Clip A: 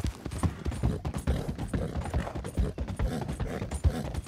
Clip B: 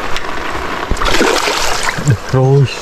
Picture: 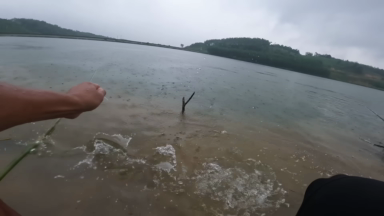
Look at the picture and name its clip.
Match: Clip B